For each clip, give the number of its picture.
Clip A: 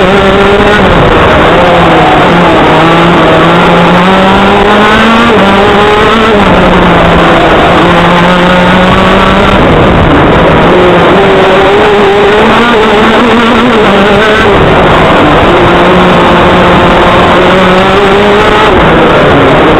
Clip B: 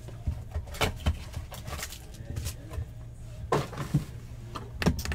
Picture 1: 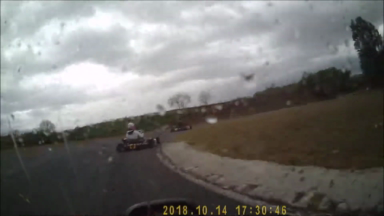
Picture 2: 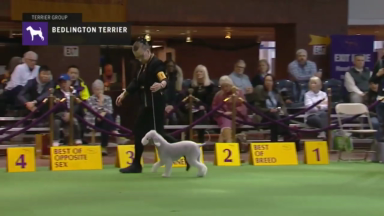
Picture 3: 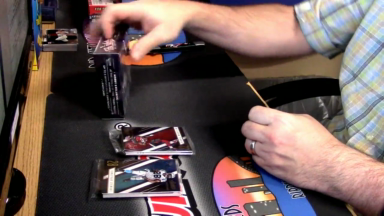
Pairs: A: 1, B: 3